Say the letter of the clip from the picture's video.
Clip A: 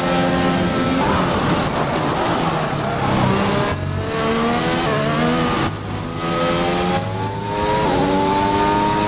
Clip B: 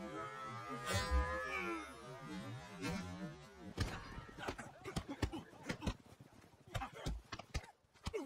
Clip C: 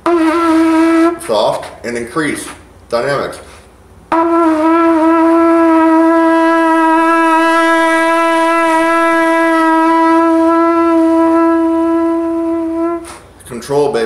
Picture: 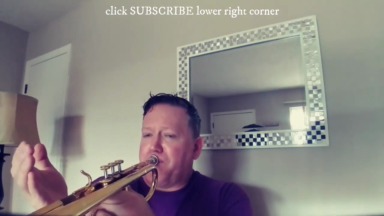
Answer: C